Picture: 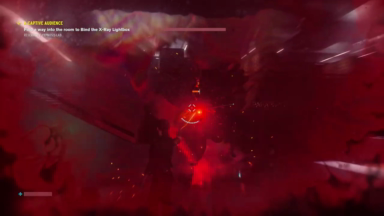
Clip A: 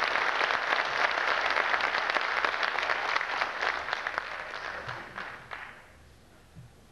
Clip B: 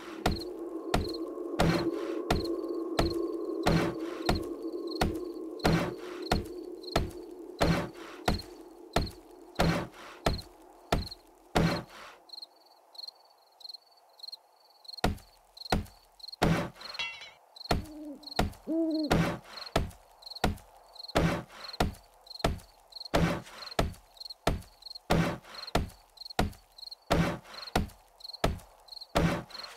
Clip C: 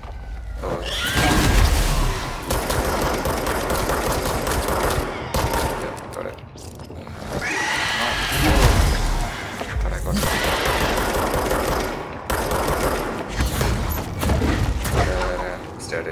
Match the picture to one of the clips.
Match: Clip C